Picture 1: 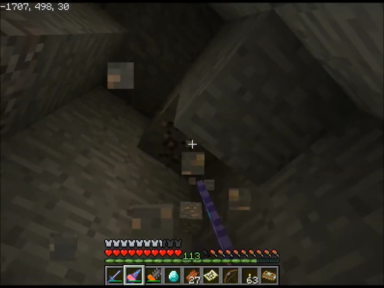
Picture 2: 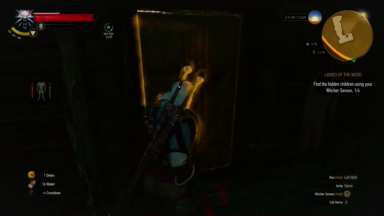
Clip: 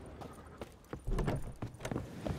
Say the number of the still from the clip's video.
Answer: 2